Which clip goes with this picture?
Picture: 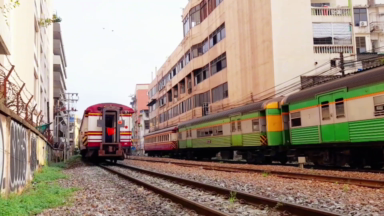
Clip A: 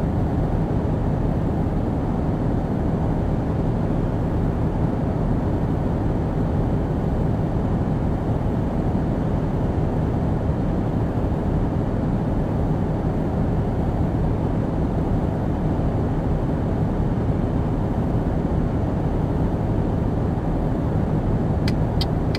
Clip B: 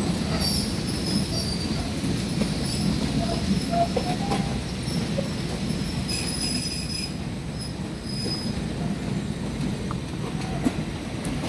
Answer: B